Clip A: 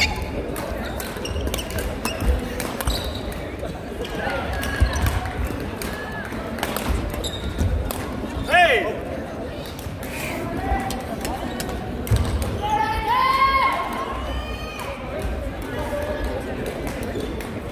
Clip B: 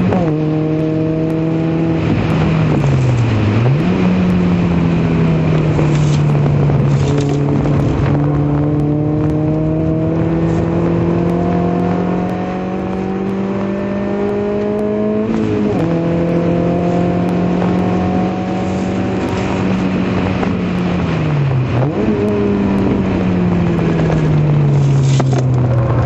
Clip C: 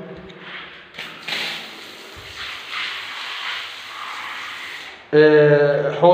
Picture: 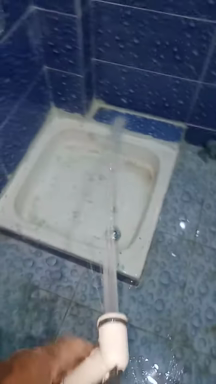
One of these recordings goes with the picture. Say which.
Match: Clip C